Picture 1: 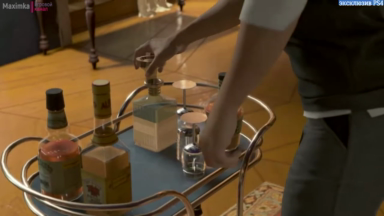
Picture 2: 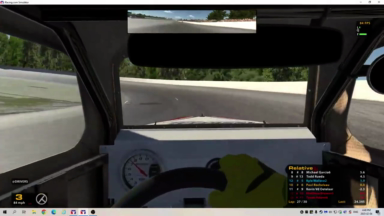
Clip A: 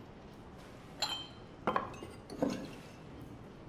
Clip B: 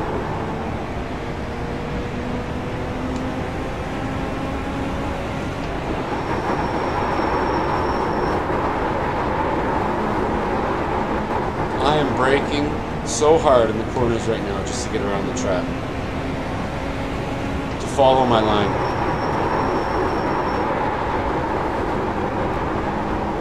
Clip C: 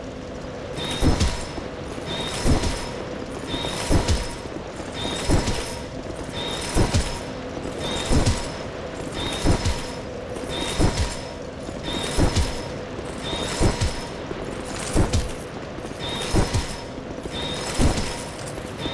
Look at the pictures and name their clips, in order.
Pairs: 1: A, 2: B